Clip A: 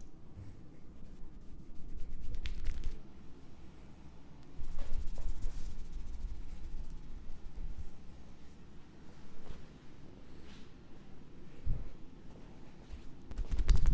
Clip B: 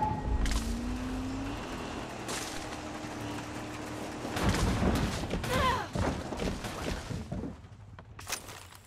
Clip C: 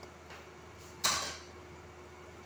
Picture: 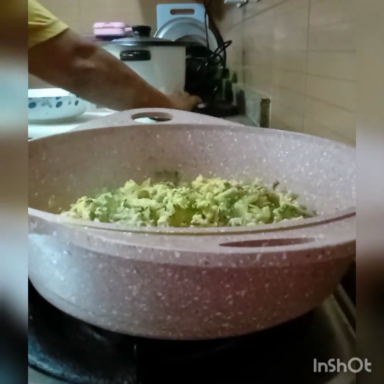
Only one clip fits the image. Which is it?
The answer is C